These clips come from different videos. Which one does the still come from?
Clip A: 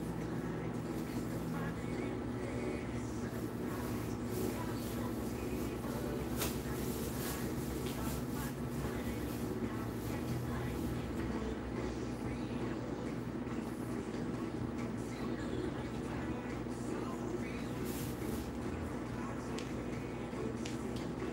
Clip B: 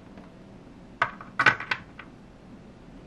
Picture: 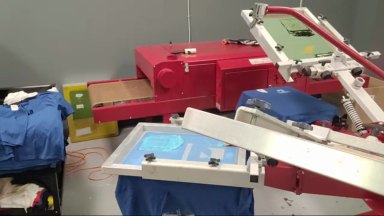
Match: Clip A